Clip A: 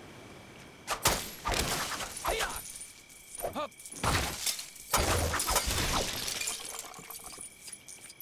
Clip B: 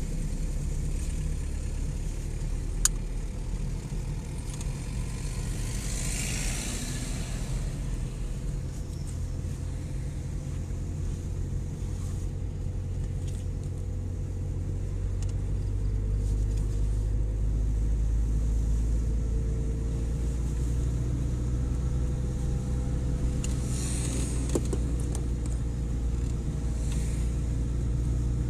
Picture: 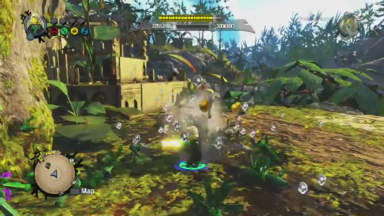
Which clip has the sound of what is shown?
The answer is A